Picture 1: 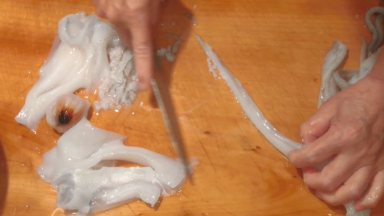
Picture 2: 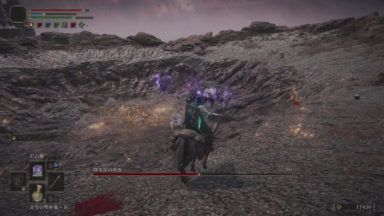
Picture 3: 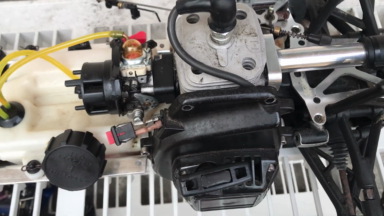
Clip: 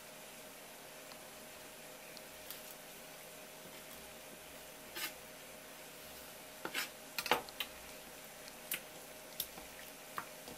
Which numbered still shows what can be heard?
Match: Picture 1